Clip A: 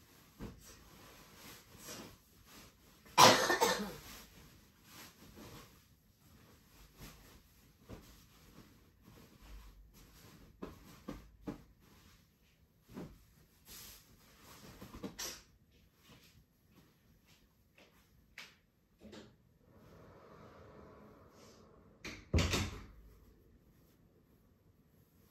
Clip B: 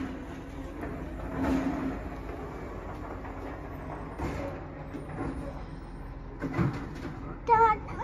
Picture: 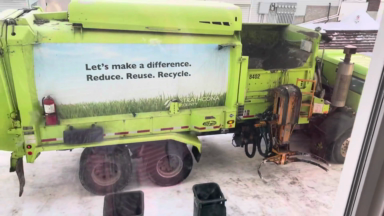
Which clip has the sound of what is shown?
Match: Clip B